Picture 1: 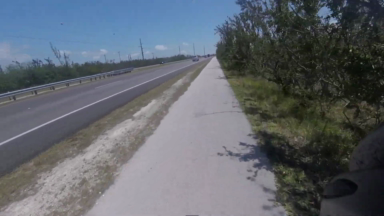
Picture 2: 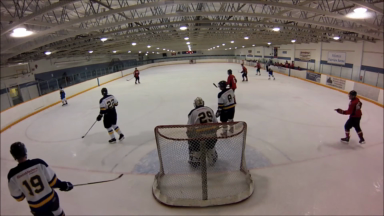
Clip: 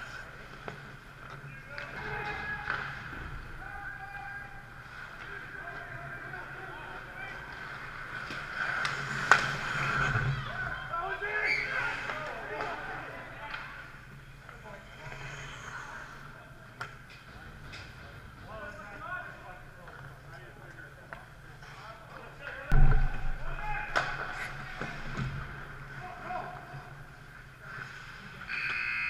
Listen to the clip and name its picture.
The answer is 2